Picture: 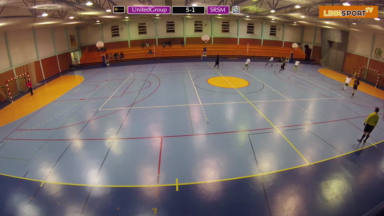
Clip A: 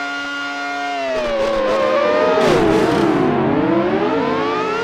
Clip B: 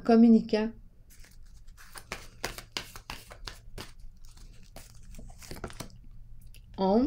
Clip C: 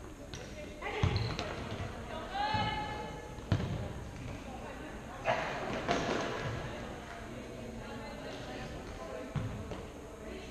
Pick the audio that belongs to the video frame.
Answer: C